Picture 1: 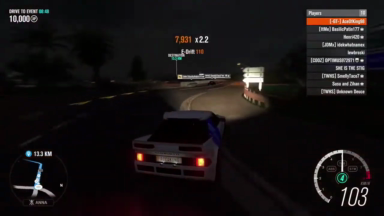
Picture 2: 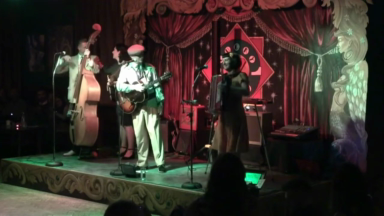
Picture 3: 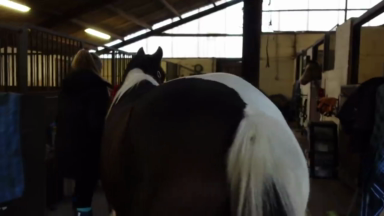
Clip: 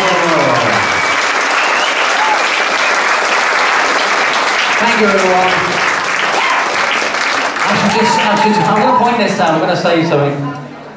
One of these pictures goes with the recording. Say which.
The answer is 2